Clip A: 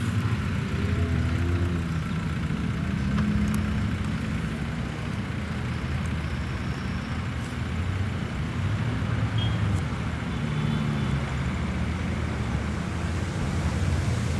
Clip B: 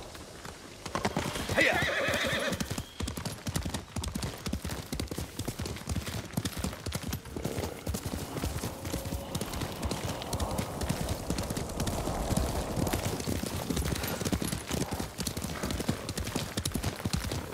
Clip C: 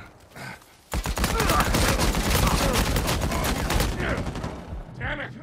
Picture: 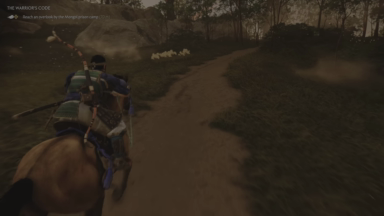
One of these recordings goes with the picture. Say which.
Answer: B